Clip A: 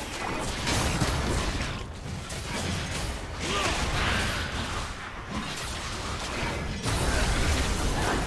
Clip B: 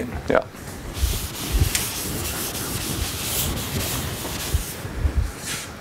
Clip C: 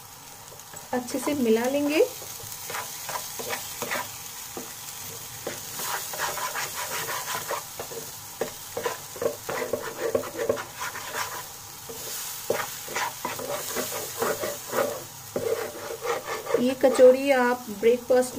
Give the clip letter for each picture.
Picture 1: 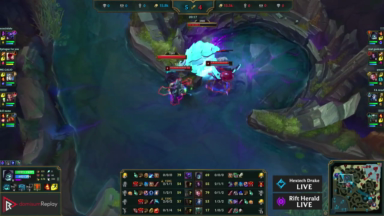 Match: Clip A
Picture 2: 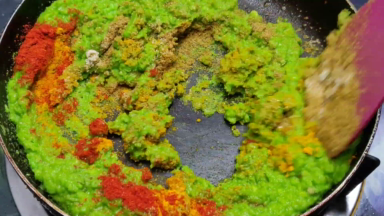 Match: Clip C